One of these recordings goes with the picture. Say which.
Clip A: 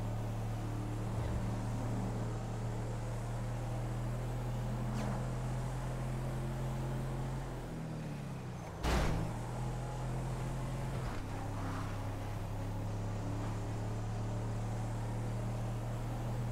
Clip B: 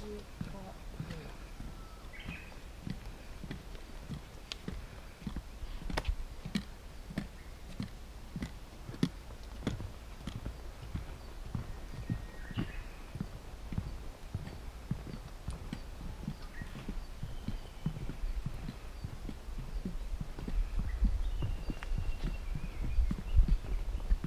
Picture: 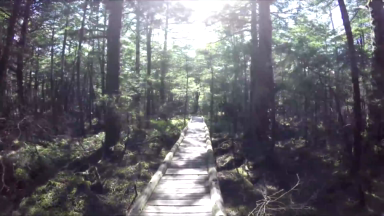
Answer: B